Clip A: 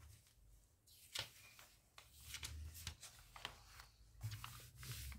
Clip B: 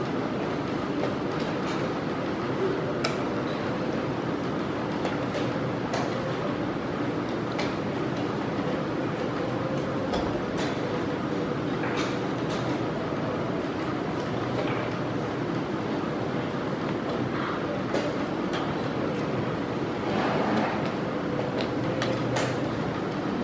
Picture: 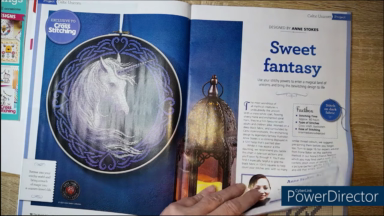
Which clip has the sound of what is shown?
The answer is A